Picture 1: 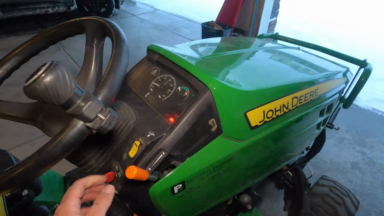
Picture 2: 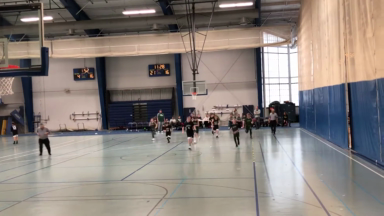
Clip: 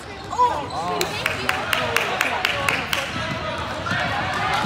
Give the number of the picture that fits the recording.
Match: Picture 2